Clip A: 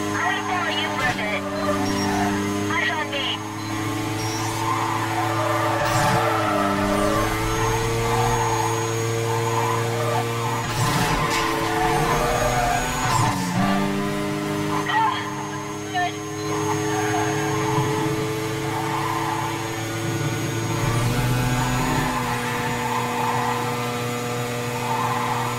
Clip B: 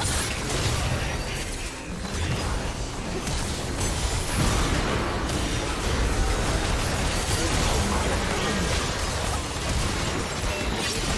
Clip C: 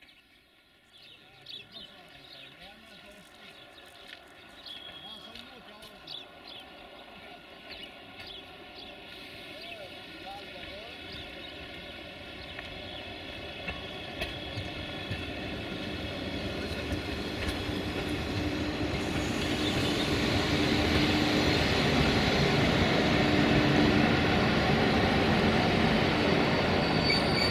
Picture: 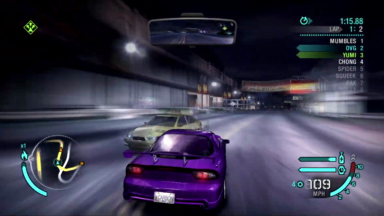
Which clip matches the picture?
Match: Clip A